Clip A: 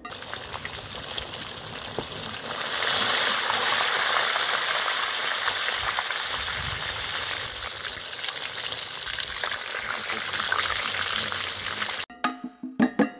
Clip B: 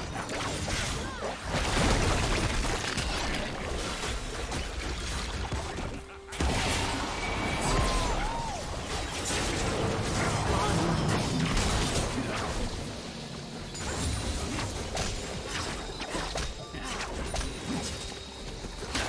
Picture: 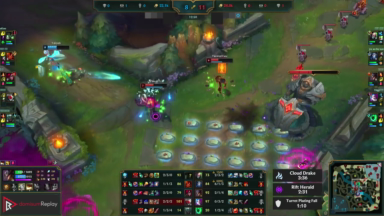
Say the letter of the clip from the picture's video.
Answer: B